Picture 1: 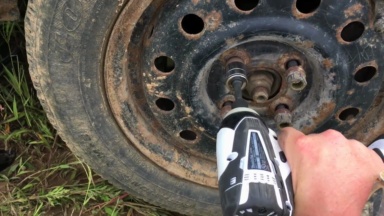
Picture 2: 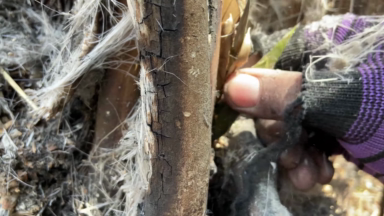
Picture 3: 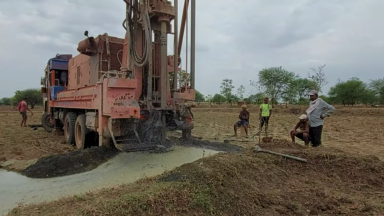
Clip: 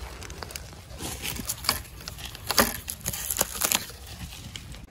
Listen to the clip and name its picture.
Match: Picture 2